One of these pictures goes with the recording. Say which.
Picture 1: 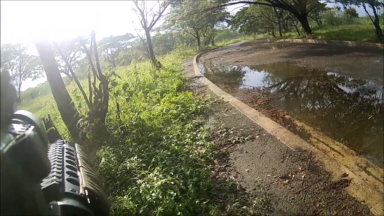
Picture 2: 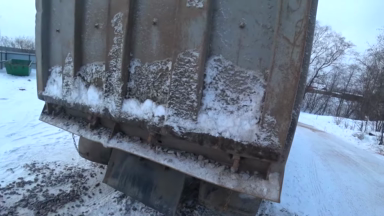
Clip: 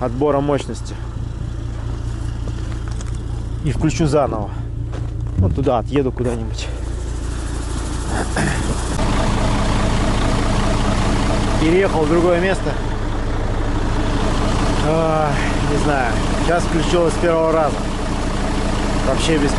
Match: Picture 2